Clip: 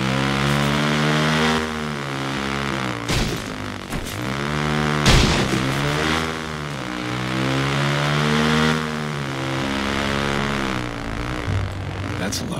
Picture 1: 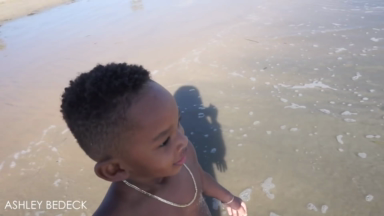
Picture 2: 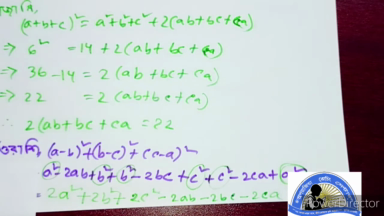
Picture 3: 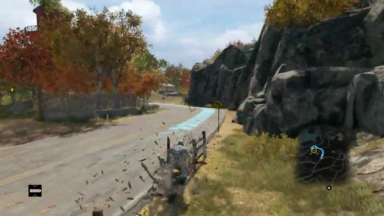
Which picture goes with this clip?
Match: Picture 3